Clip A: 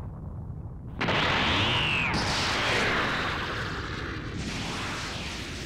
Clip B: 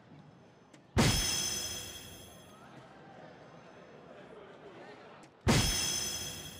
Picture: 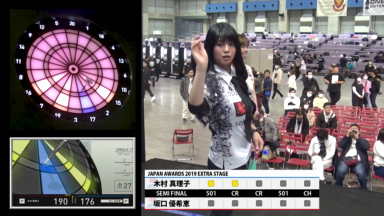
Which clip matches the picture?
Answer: B